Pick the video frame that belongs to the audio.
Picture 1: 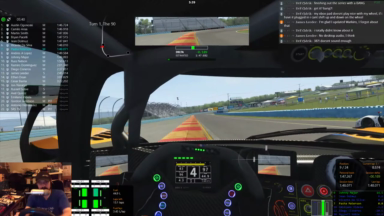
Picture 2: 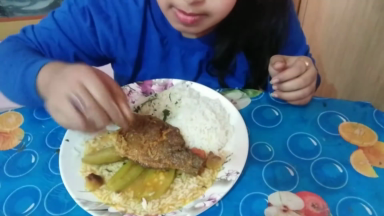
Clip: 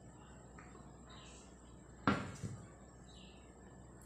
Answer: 2